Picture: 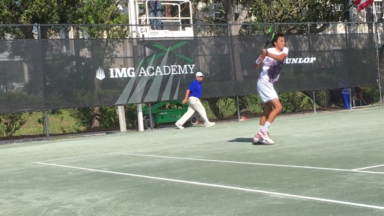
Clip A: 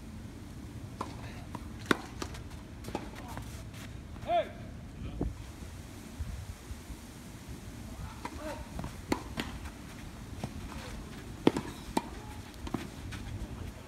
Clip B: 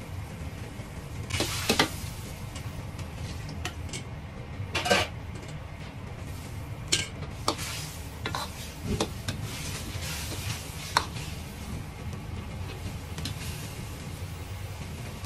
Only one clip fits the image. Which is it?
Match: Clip A